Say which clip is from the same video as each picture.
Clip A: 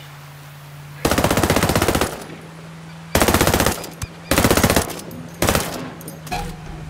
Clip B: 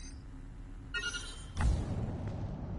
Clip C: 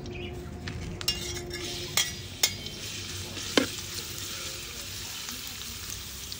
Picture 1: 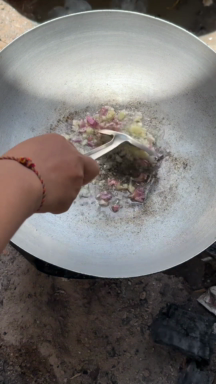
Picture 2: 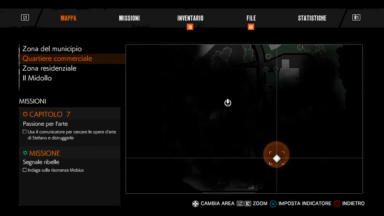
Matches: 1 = C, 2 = B